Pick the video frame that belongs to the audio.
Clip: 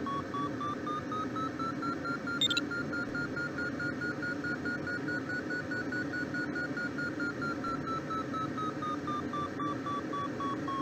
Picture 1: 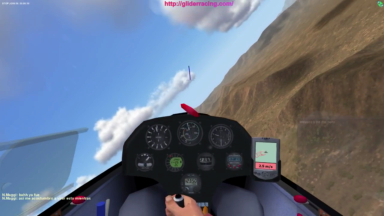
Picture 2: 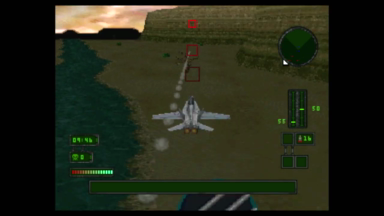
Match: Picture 1